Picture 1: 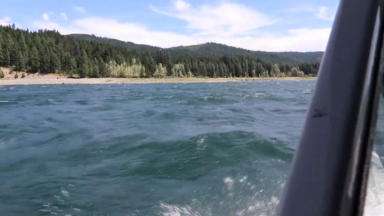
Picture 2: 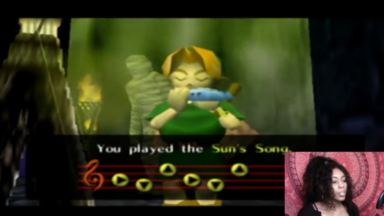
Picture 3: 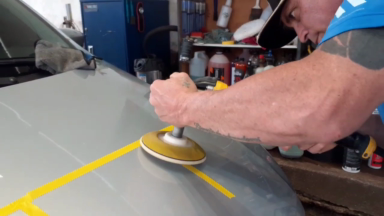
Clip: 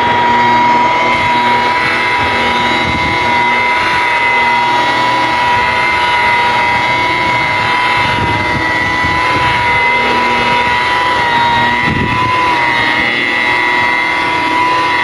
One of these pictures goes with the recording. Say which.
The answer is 3